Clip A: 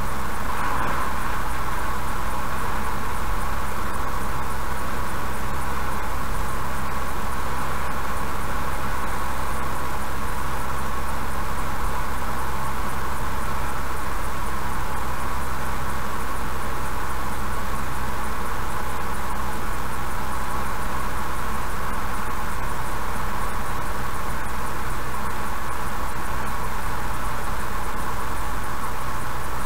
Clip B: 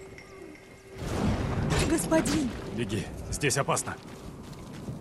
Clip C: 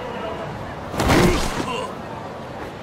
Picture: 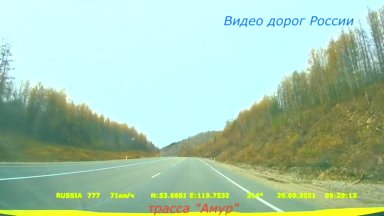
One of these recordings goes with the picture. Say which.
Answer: A